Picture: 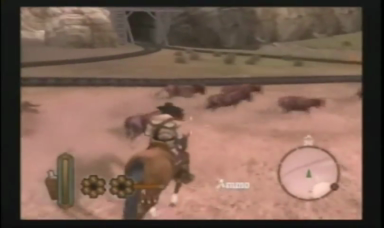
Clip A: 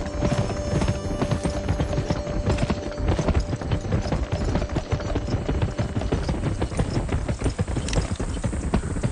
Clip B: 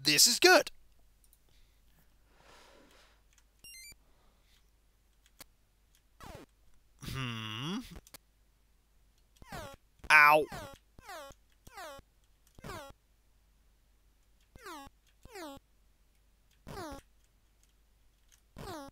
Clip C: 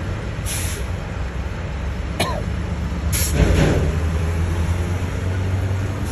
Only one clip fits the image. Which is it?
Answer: A